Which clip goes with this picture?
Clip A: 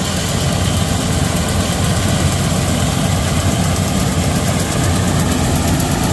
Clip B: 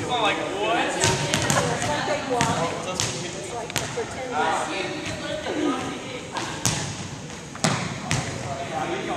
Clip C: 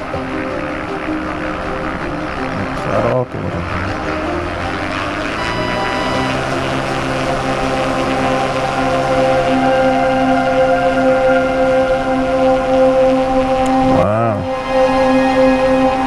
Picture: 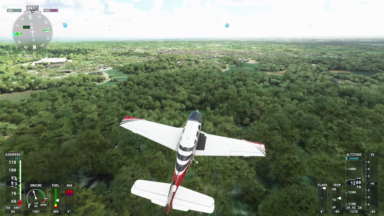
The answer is C